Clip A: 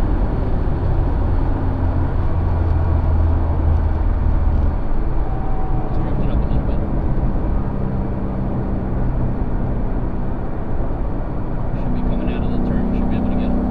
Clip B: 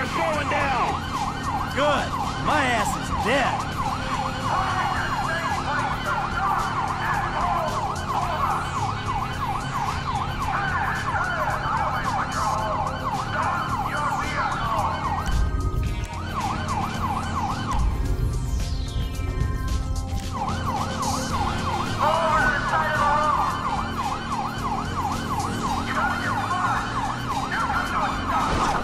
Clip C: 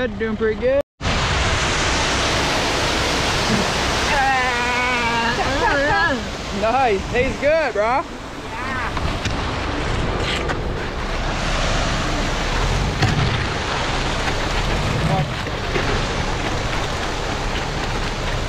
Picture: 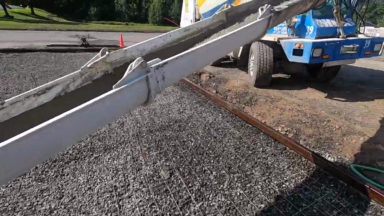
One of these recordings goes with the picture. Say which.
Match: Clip C